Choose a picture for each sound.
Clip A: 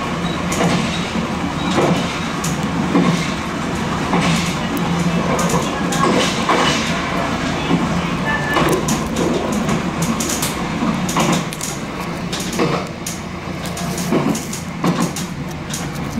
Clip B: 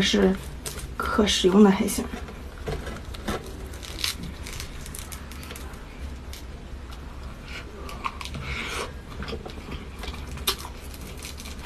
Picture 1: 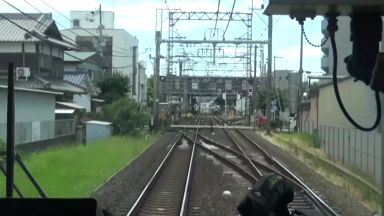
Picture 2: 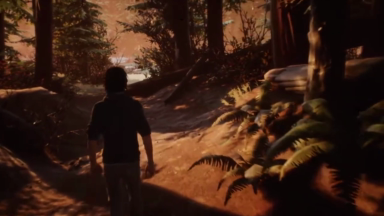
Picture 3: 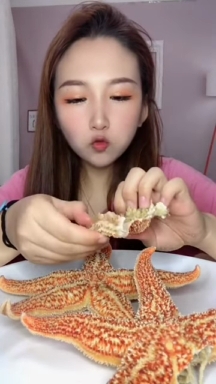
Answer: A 1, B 3